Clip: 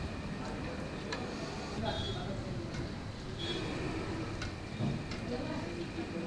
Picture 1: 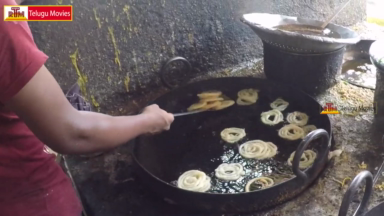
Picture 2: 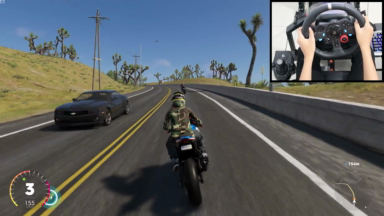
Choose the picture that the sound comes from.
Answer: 1